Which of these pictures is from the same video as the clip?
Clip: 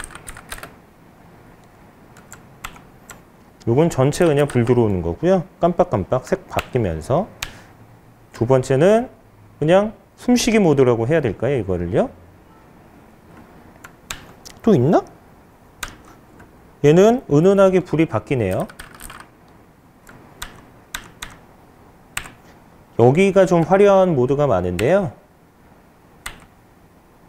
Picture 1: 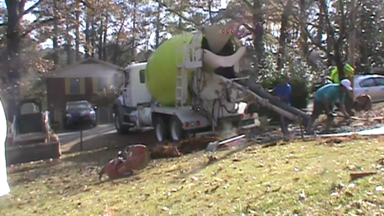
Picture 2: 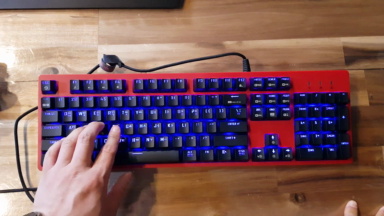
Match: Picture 2